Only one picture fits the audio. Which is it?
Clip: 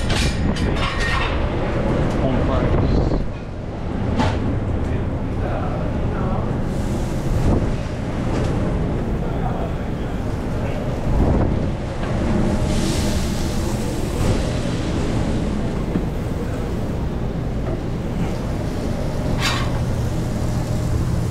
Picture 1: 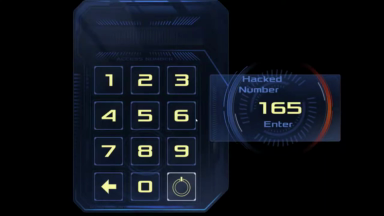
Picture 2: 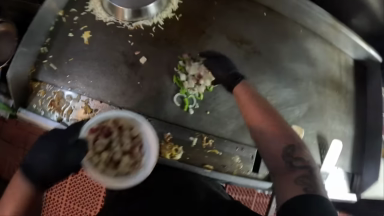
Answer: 2